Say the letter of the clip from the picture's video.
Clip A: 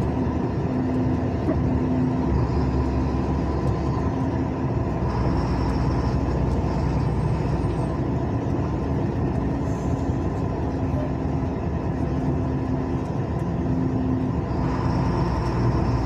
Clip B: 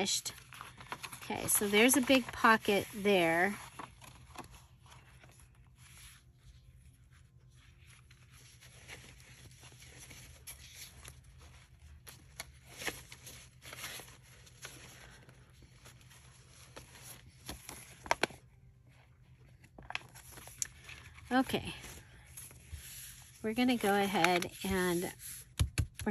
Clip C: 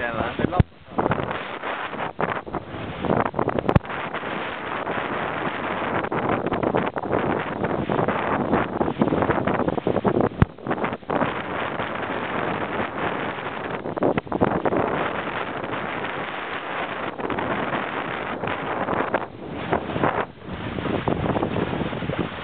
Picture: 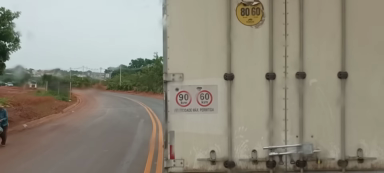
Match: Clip A